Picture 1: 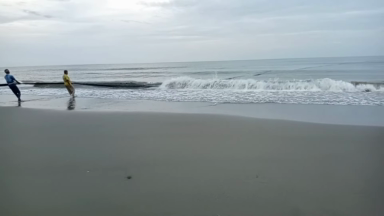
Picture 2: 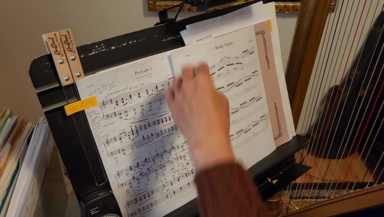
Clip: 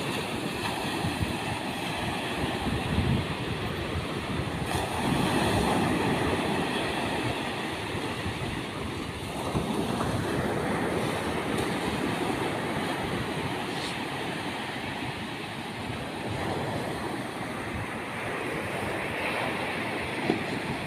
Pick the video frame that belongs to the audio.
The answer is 1